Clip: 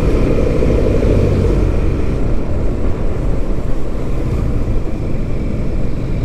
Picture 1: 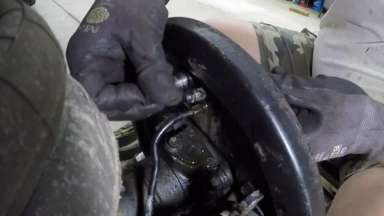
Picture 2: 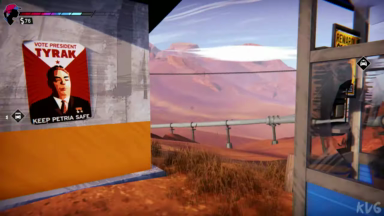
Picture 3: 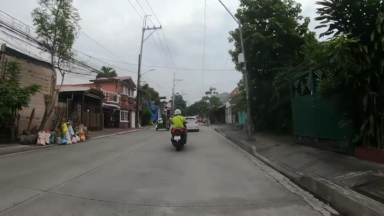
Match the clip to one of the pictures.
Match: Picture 3